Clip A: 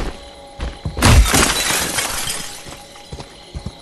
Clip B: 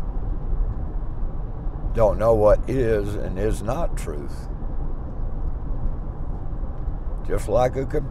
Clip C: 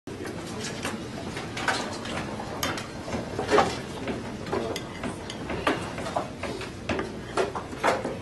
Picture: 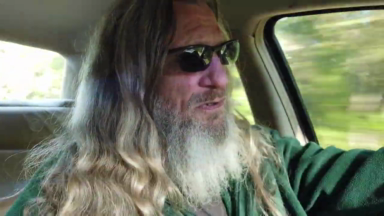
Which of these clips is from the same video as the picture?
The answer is B